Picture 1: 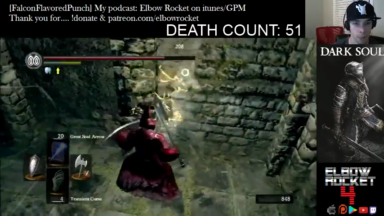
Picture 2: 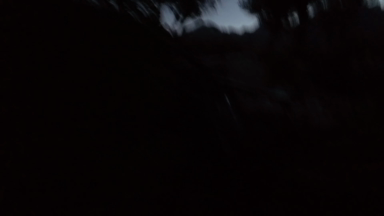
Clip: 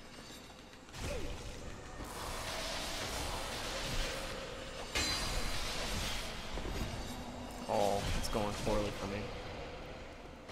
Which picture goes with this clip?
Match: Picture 1